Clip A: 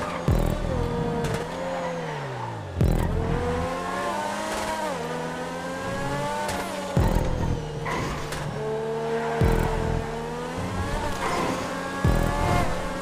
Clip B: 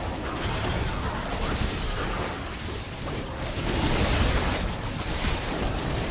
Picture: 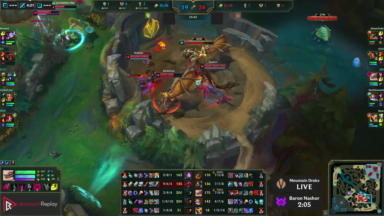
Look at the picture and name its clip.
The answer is B